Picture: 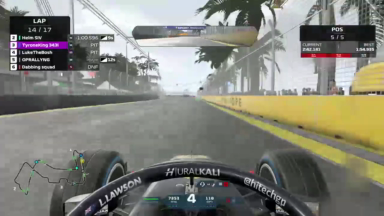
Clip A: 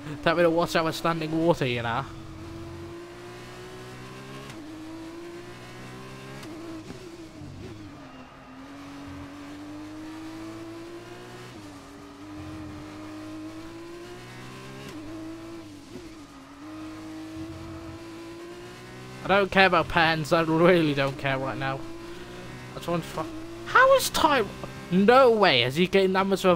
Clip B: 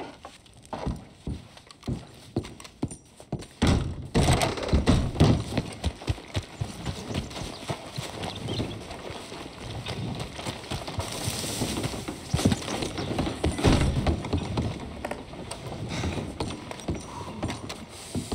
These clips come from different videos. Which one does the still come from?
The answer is A